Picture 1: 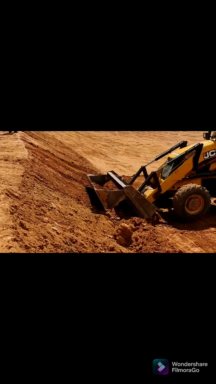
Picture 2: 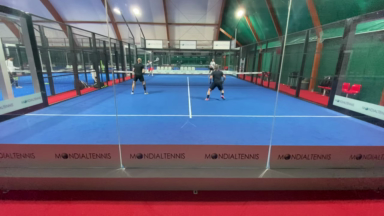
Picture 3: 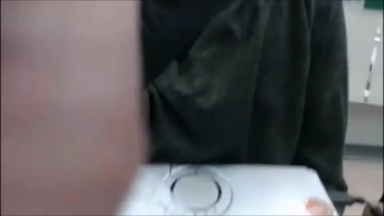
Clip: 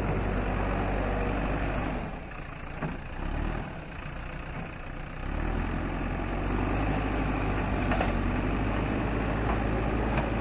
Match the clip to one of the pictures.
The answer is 1